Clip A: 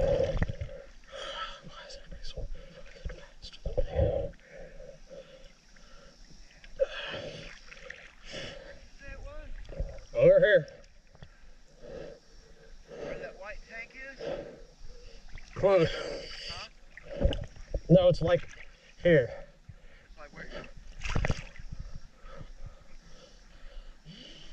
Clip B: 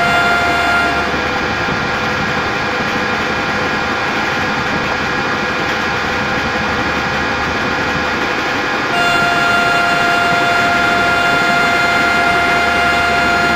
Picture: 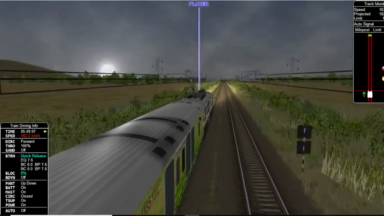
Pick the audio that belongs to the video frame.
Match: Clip B